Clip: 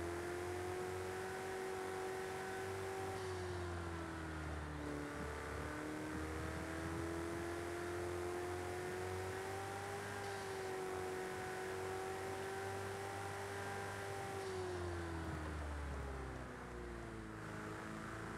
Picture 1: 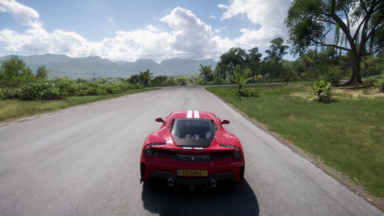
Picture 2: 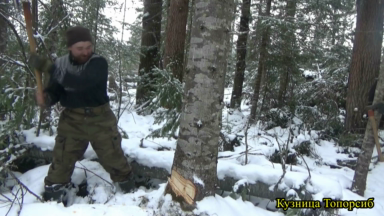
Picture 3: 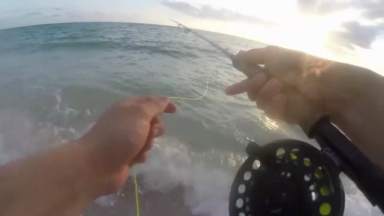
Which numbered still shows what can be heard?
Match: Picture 1